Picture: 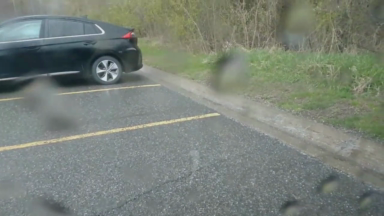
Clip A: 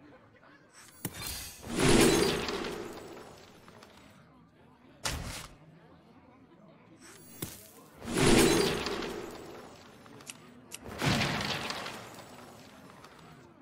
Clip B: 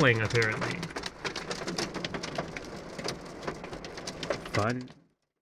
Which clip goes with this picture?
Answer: B